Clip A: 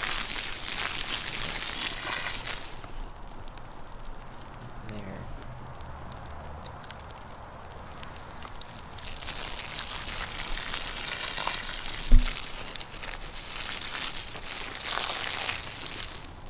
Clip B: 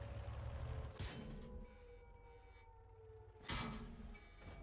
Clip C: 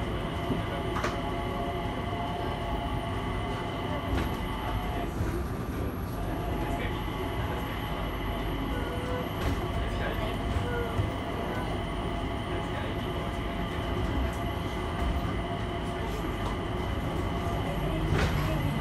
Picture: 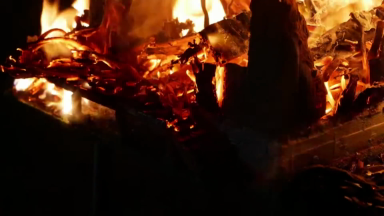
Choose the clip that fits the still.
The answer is A